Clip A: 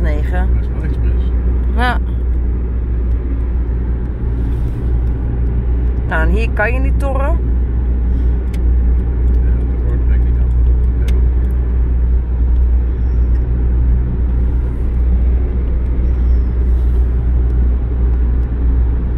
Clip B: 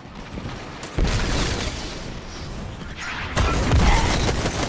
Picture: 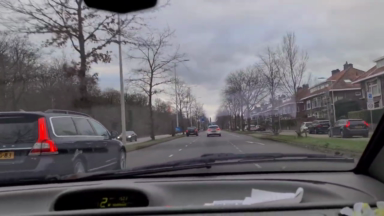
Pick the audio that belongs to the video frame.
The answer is A